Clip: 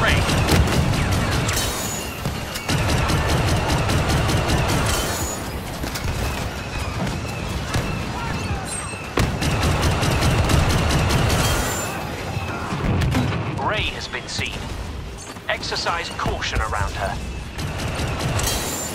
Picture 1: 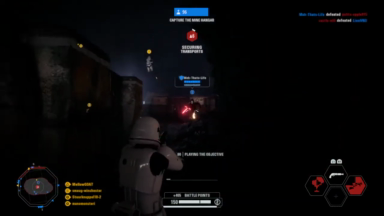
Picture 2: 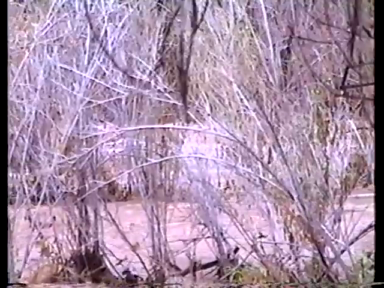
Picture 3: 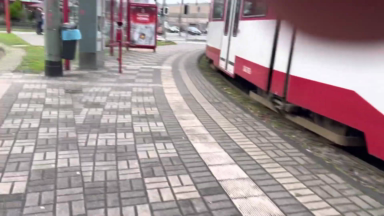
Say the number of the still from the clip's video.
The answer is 1